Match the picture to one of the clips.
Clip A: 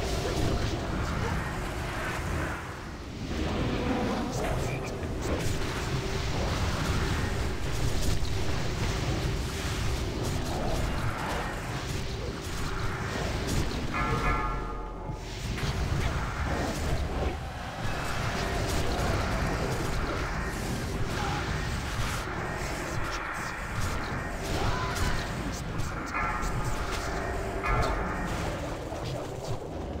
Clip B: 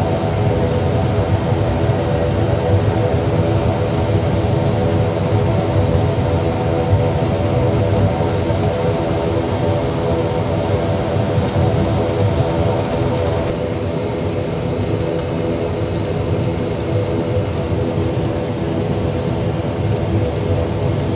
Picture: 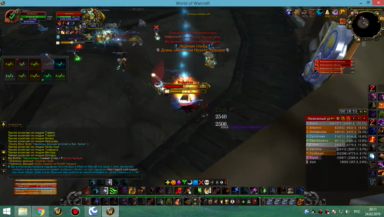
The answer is A